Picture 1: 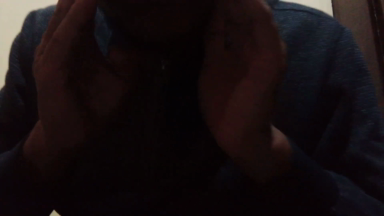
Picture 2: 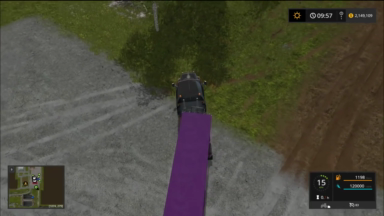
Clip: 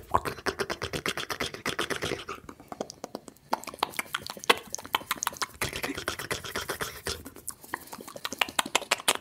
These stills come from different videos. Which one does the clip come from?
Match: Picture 1